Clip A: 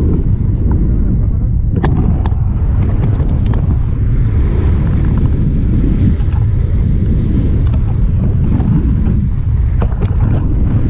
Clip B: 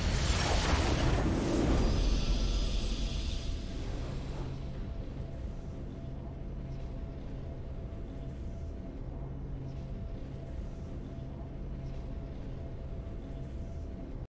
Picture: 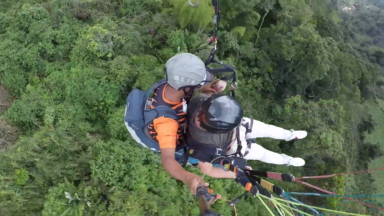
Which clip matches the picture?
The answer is A